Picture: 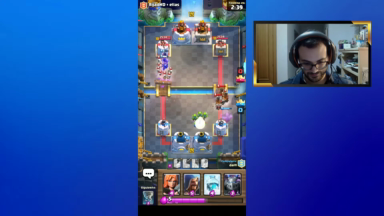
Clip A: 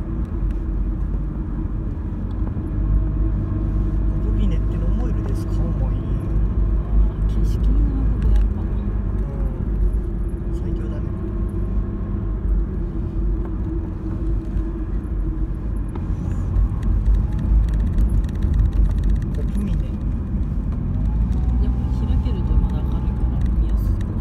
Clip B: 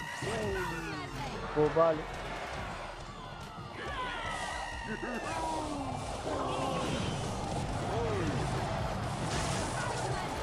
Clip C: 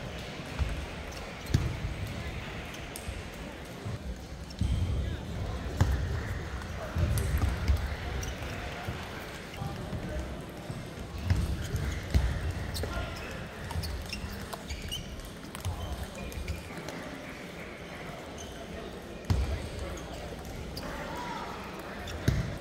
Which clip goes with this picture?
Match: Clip B